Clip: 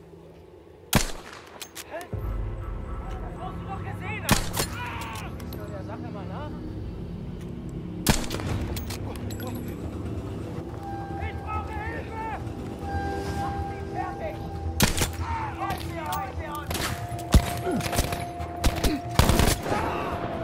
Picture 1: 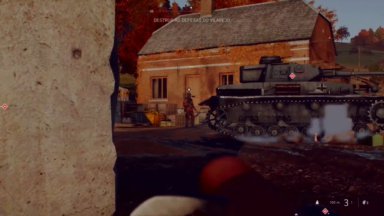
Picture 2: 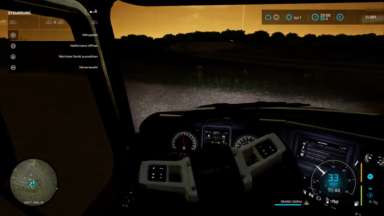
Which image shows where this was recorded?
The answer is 1